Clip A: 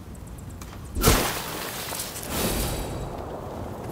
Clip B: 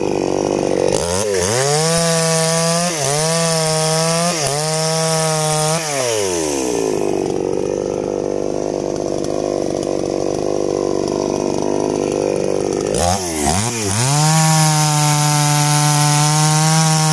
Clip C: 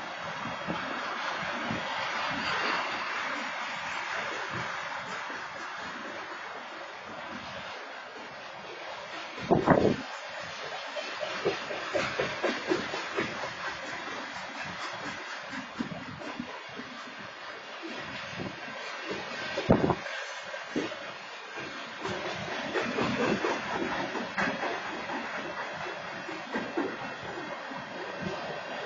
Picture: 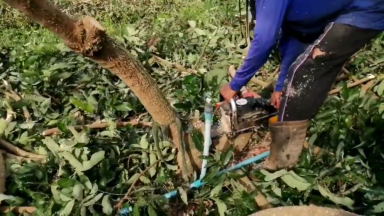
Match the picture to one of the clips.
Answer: B